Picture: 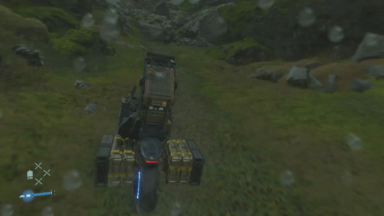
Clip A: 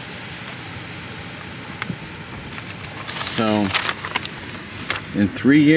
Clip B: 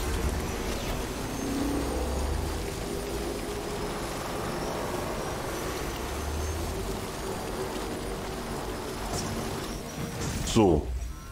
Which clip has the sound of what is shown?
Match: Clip B